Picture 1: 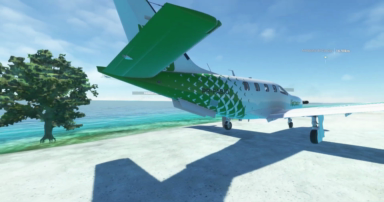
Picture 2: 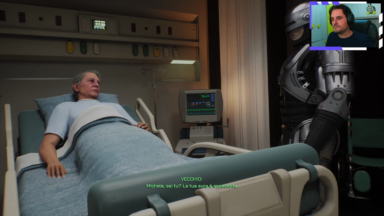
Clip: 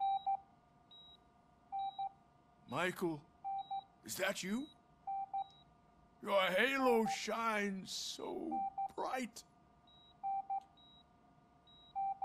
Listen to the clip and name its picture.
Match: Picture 2